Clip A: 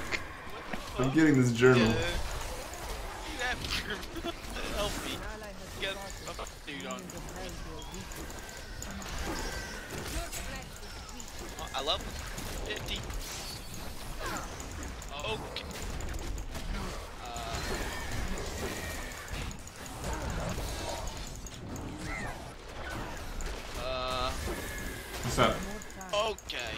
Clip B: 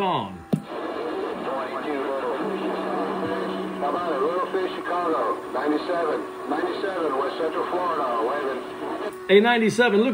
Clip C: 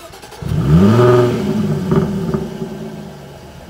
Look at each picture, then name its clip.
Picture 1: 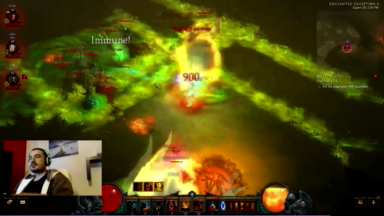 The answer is A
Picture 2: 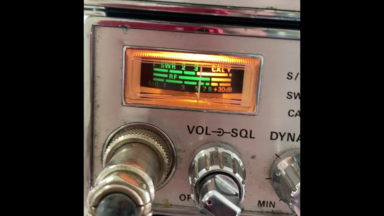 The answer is B